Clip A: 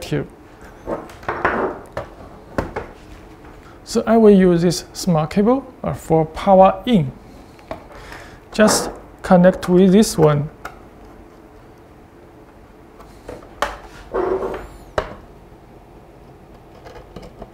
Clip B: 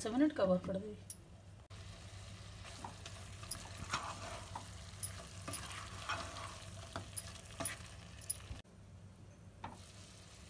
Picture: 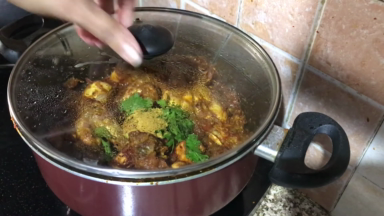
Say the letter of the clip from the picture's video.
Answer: B